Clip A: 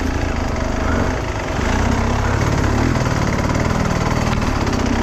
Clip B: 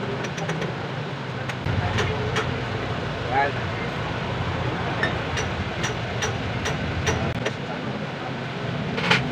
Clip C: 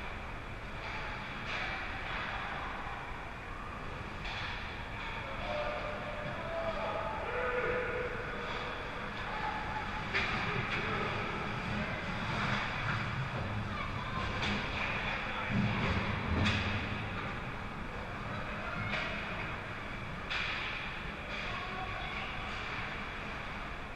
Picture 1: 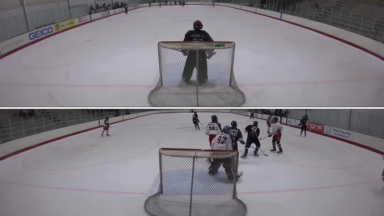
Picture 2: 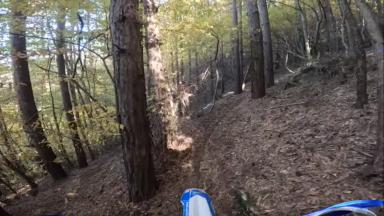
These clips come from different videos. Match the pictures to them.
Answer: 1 C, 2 A